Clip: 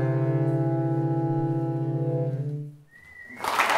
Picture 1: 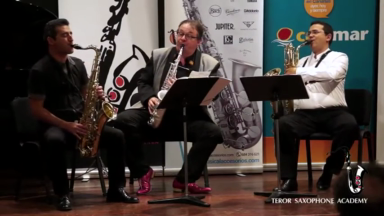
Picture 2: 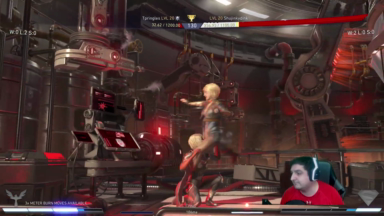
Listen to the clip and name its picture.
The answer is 1